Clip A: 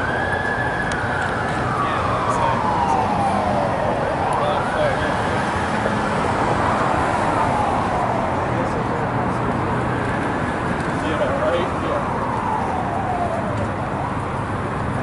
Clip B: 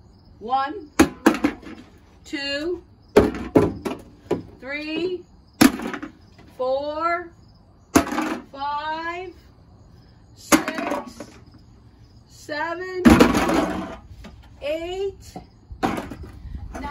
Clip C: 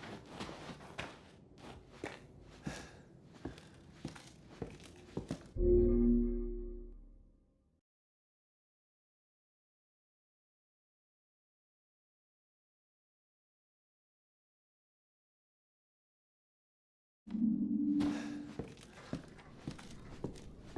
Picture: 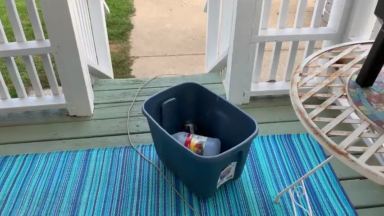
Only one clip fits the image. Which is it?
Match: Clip B